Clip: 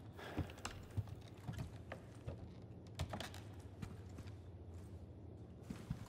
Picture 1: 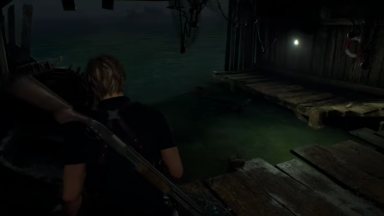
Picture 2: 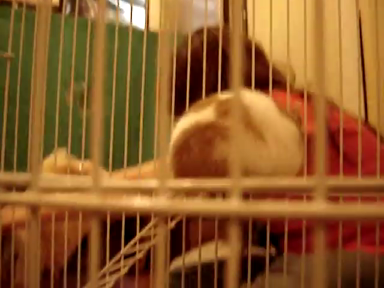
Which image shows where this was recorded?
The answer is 1